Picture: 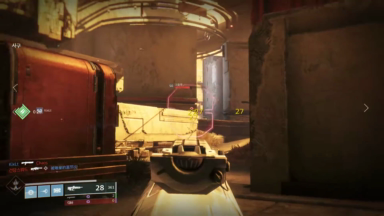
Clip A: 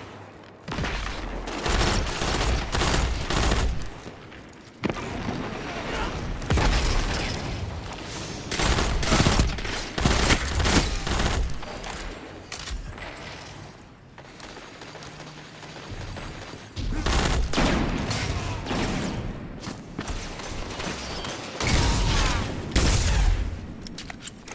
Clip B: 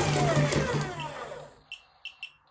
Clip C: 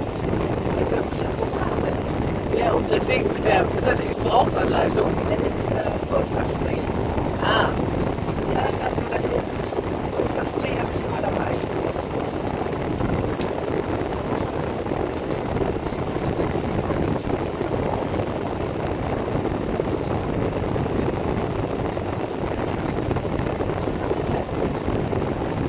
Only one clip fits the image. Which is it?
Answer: A